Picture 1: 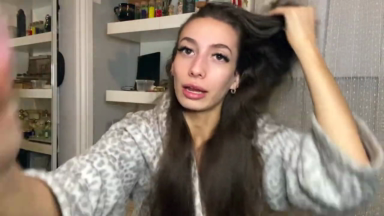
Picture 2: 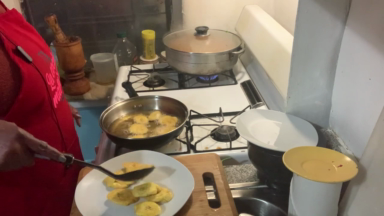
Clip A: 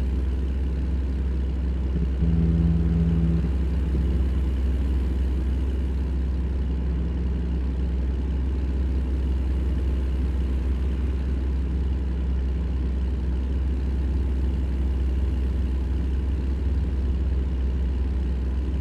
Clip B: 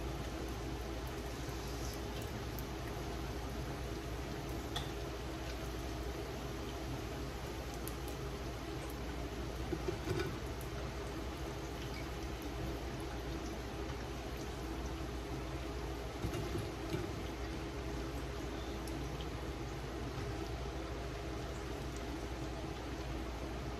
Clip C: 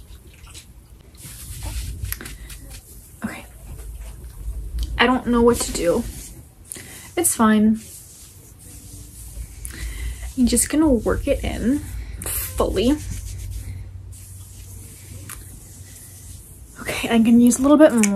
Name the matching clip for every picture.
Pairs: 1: C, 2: B